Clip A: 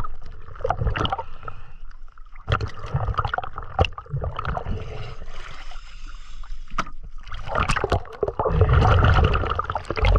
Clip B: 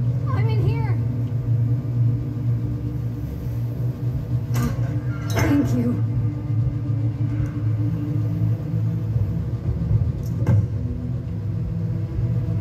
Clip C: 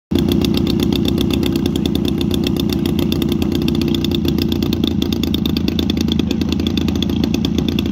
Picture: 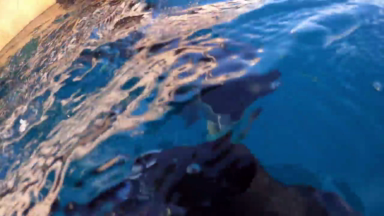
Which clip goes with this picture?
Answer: A